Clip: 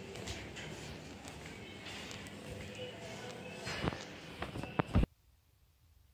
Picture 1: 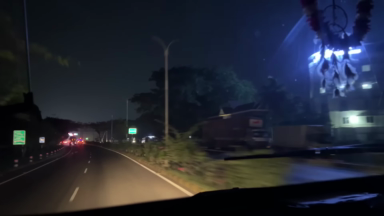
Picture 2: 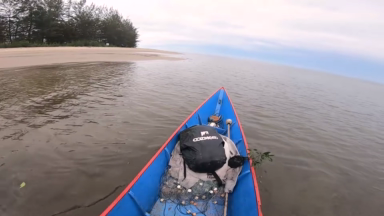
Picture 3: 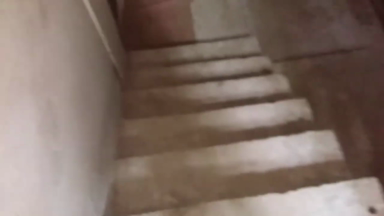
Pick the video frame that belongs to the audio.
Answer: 3